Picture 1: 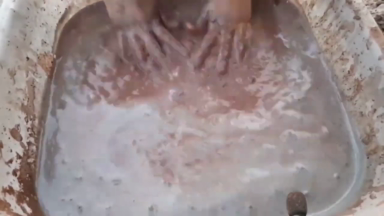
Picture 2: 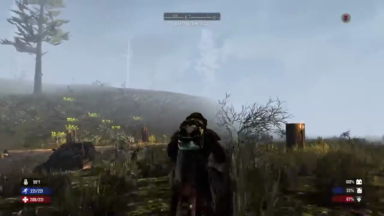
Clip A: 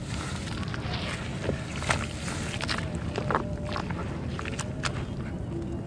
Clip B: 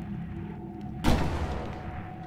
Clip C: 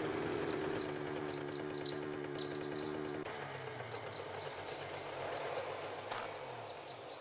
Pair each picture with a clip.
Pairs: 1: A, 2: C